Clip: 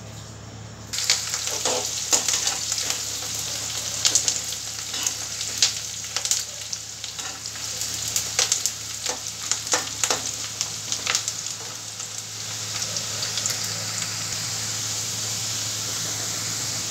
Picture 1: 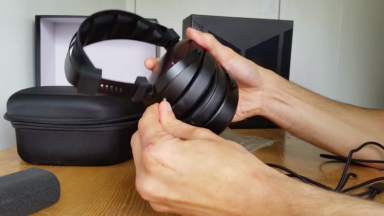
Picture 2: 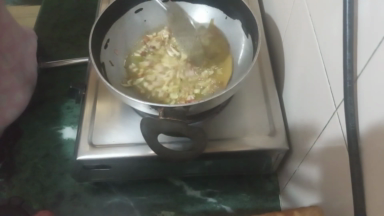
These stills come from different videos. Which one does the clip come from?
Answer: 2